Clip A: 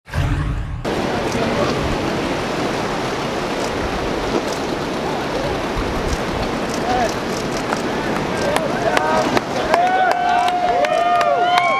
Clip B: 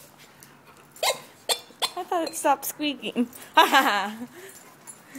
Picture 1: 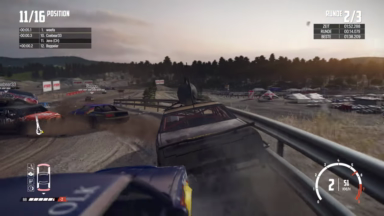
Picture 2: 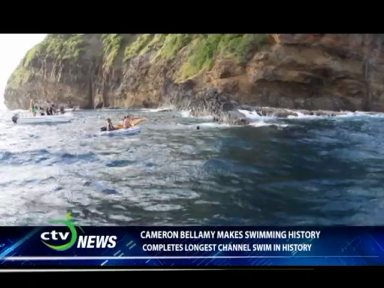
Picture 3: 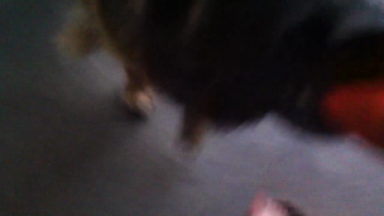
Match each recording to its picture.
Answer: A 2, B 3